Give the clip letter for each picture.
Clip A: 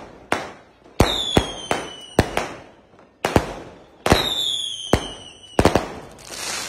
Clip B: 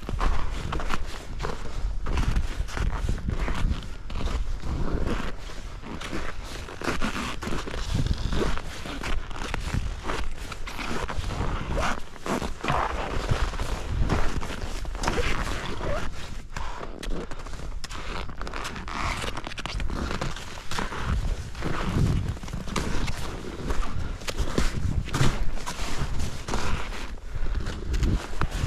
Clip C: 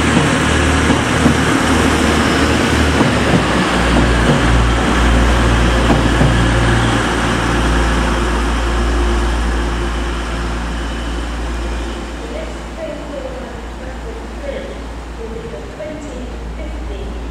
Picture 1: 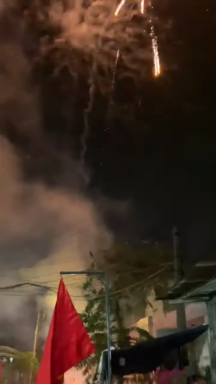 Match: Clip A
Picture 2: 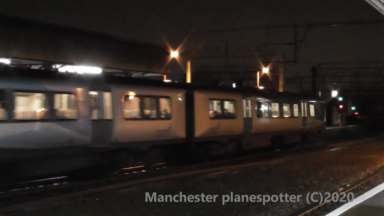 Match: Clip C